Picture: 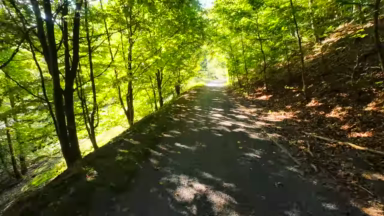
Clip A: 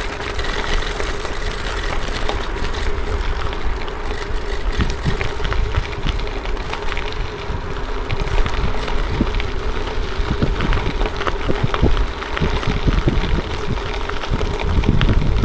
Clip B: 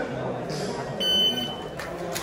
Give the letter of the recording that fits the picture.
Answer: A